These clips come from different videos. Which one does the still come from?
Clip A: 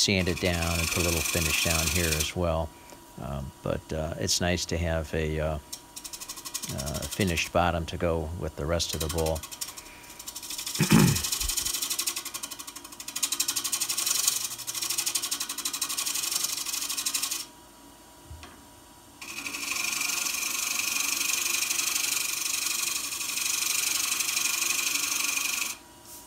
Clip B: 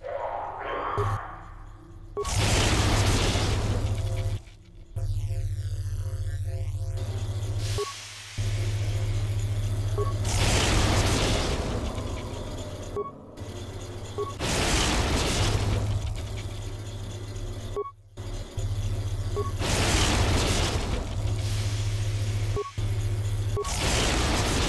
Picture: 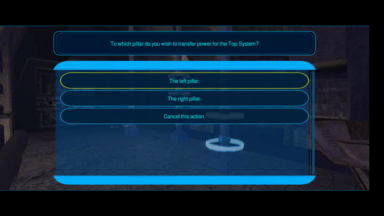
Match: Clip B